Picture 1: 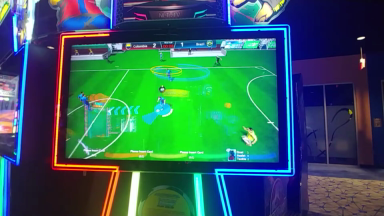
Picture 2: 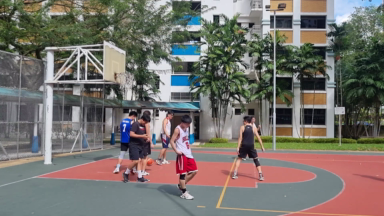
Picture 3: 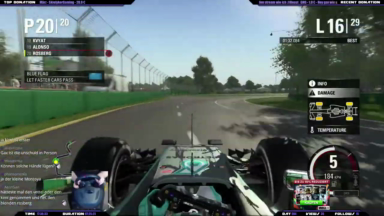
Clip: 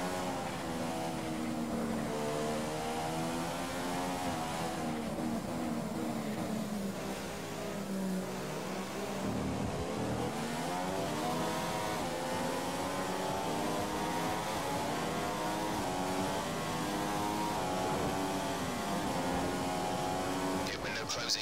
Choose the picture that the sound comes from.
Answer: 3